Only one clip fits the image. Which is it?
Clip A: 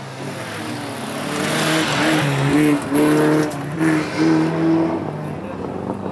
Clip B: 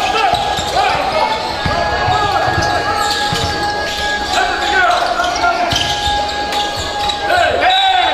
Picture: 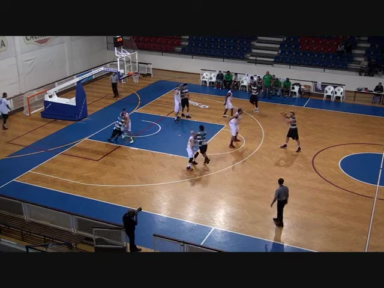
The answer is B